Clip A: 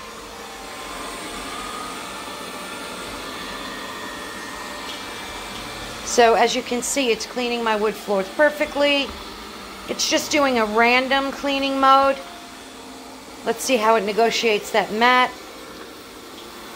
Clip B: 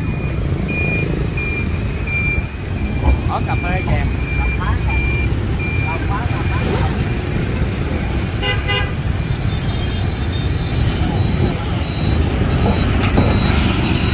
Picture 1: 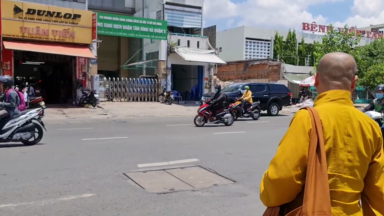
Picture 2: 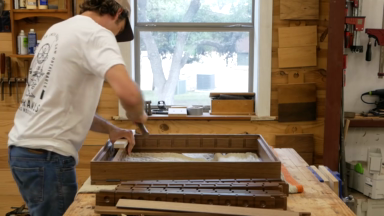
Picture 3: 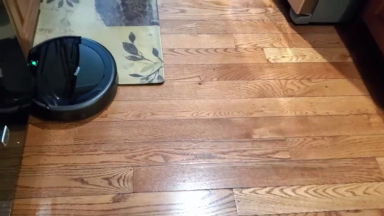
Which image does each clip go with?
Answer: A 3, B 1